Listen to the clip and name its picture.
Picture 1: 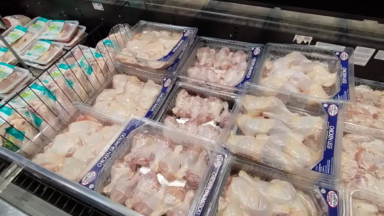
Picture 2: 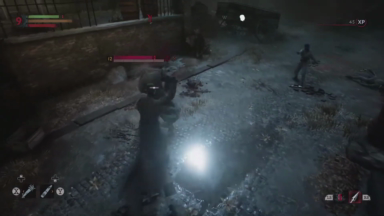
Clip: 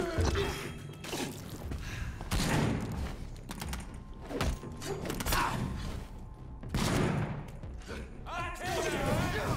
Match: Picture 2